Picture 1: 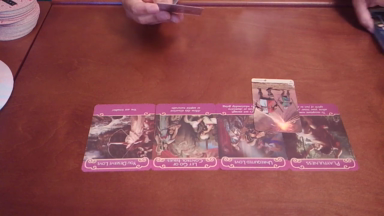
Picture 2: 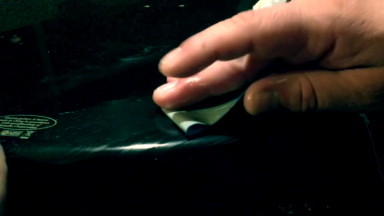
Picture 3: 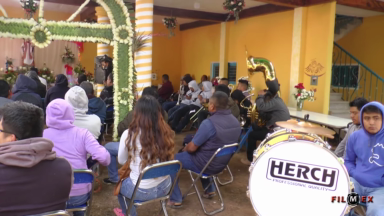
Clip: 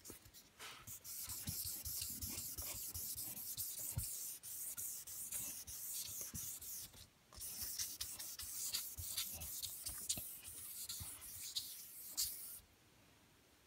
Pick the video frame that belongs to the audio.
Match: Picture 2